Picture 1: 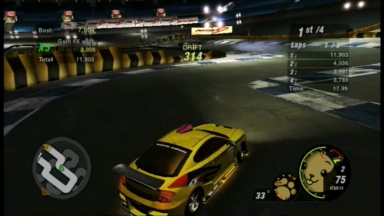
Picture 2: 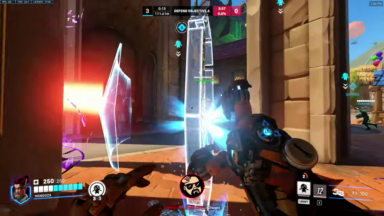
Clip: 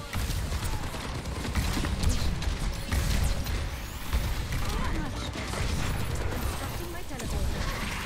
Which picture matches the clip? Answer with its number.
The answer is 2